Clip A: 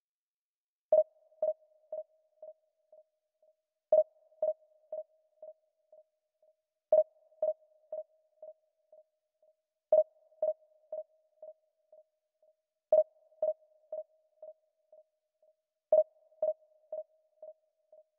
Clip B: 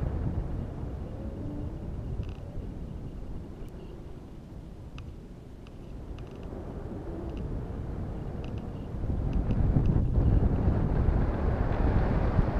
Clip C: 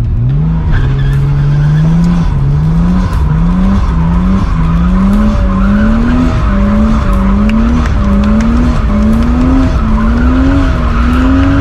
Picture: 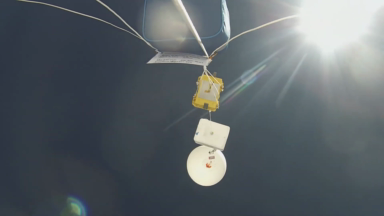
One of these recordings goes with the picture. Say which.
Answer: B